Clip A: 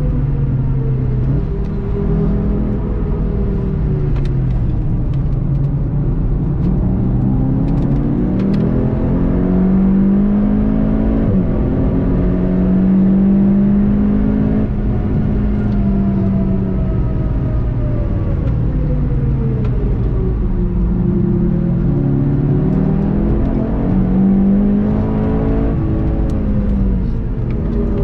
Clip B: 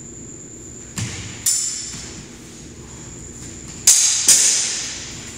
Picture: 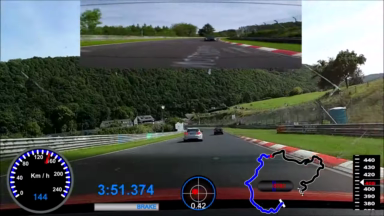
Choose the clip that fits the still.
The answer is A